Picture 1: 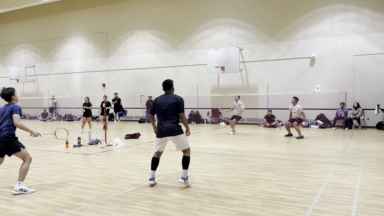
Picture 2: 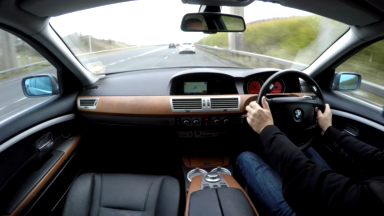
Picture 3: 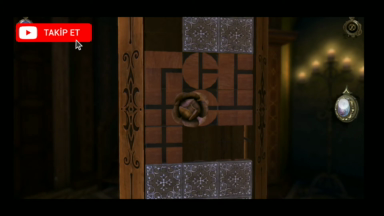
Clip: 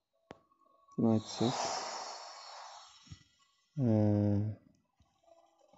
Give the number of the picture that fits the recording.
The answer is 3